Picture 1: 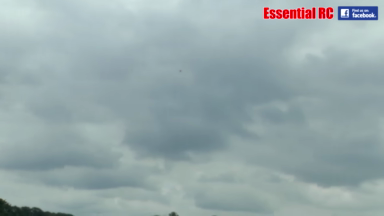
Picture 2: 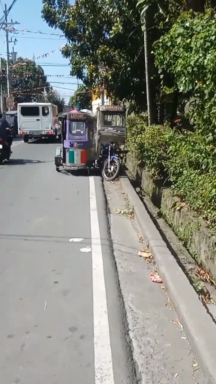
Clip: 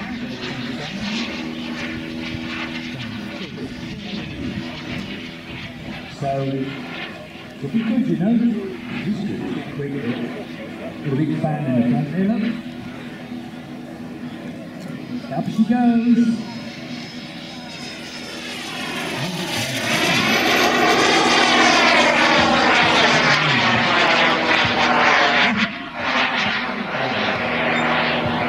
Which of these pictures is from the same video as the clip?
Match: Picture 1